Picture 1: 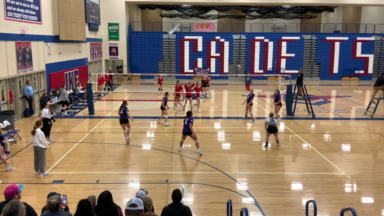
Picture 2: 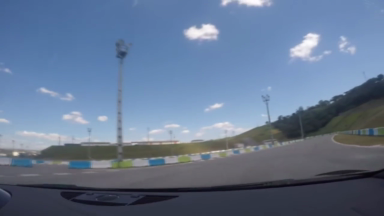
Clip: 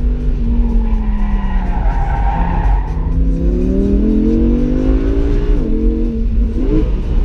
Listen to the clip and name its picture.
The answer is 2